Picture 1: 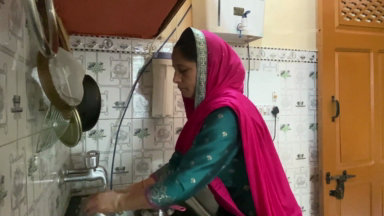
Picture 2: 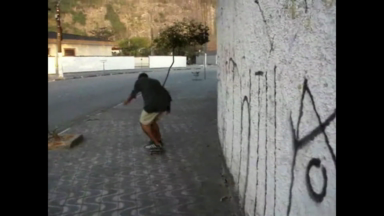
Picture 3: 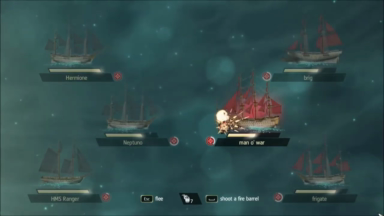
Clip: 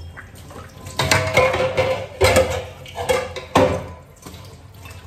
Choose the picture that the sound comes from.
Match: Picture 1